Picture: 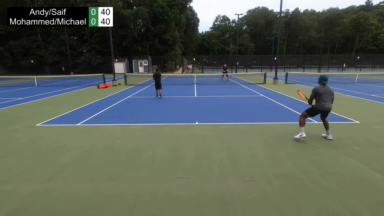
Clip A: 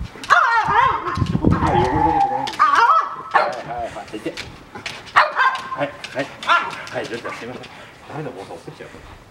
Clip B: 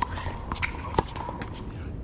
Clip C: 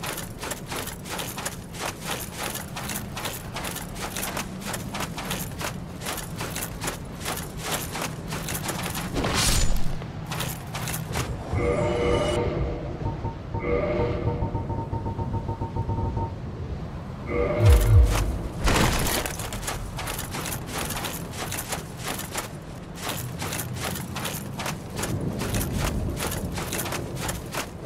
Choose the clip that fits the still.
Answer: B